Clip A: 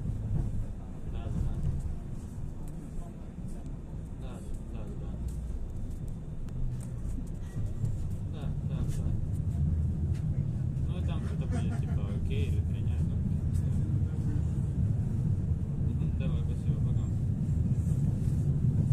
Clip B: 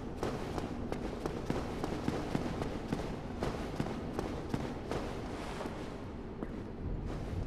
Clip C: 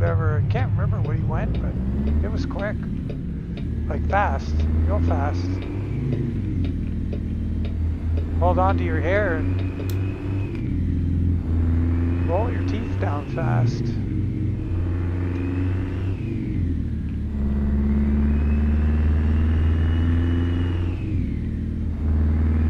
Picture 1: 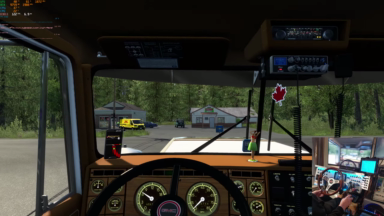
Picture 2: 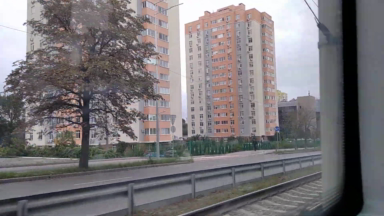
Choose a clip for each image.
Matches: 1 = C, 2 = A